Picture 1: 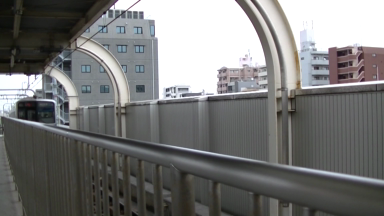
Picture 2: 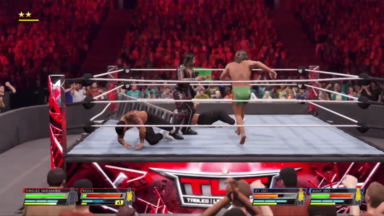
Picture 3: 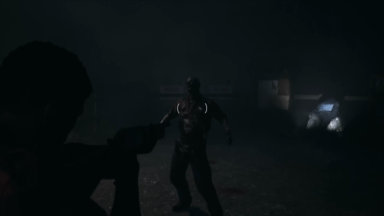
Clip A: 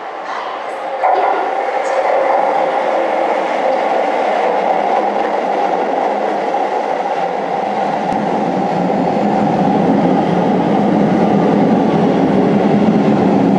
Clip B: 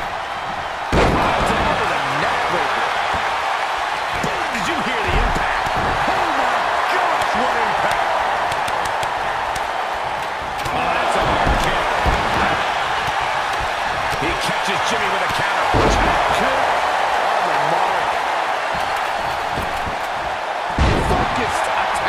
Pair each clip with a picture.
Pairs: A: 1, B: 2